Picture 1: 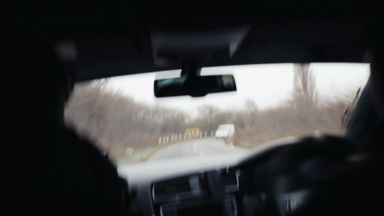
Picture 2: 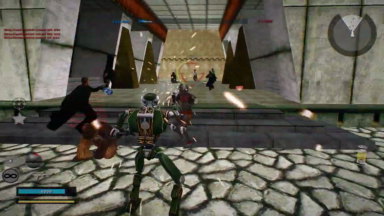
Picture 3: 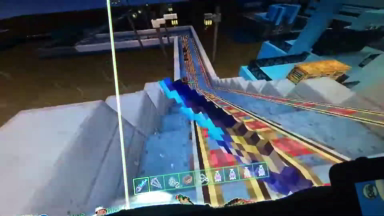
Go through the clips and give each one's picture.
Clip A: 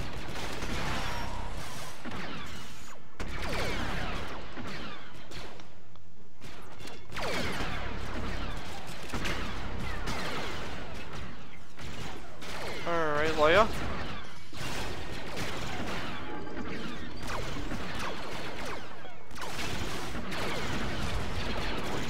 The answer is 2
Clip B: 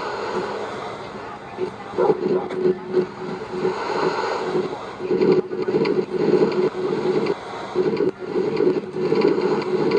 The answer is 3